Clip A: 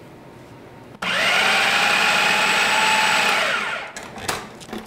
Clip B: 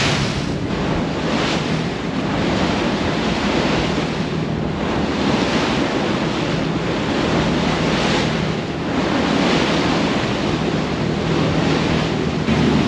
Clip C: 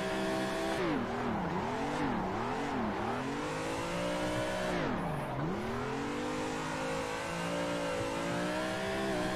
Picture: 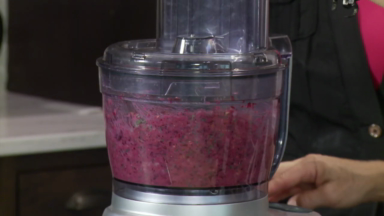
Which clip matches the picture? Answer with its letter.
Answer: A